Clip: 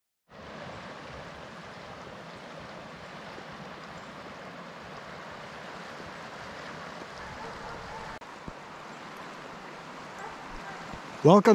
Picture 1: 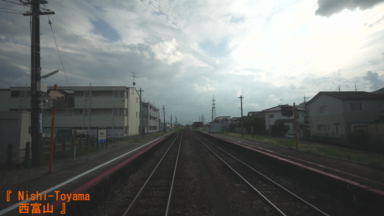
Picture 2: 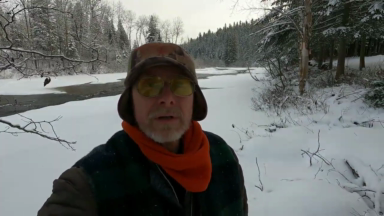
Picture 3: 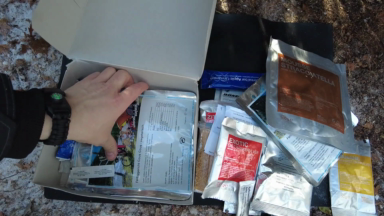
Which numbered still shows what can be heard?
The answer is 2